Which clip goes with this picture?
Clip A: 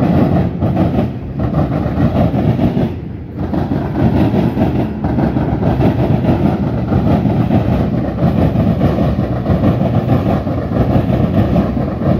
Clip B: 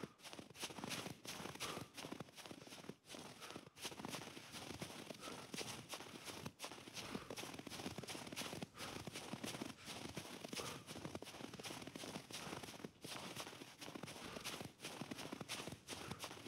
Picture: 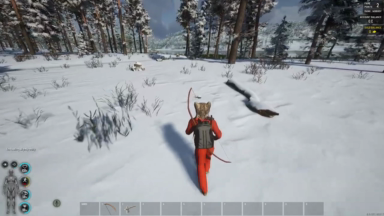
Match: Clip B